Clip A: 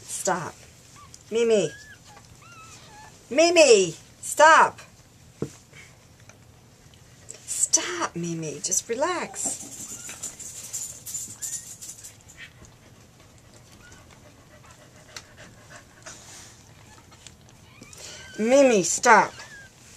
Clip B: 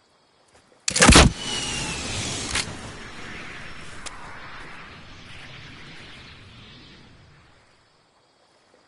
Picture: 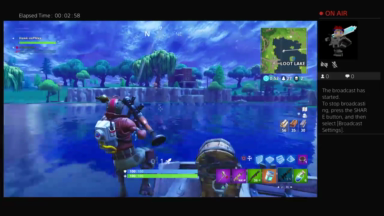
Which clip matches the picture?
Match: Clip B